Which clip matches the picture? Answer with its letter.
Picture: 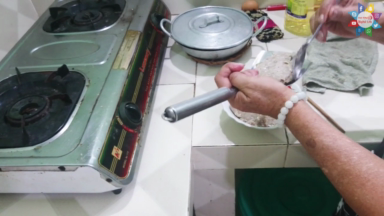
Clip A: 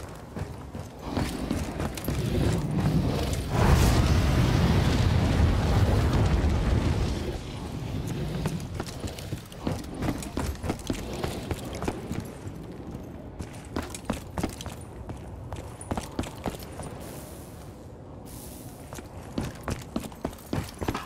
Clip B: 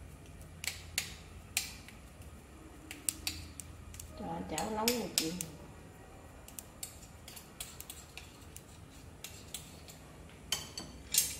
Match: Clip B